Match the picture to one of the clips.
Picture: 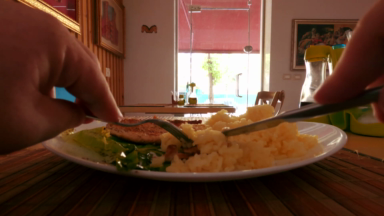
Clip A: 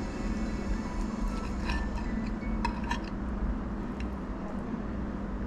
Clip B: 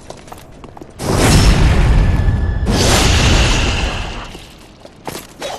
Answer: A